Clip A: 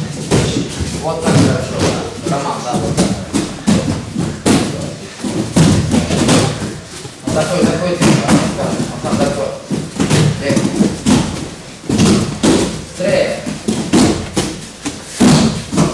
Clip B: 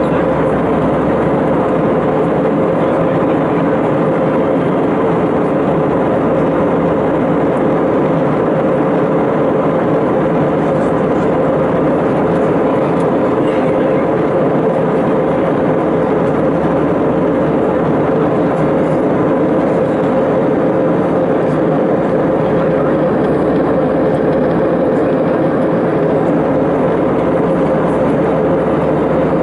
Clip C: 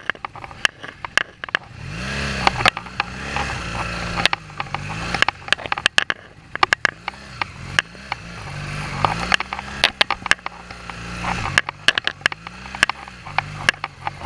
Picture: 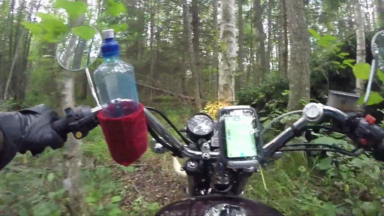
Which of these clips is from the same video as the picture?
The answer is C